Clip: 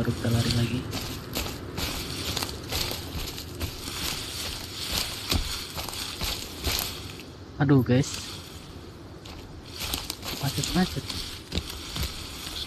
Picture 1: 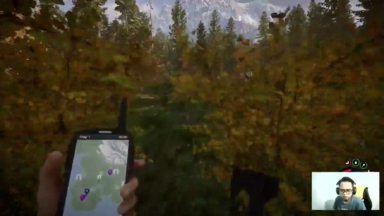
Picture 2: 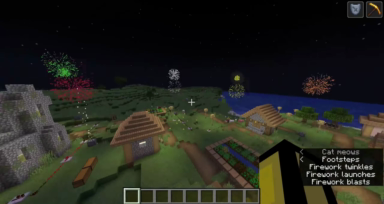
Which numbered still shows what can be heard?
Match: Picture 1